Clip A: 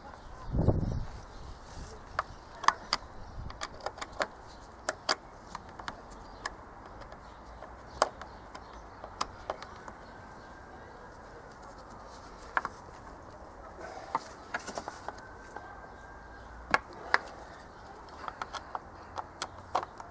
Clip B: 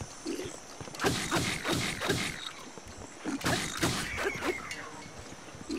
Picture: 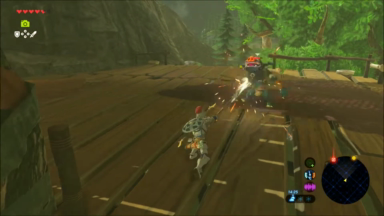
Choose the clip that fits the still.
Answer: B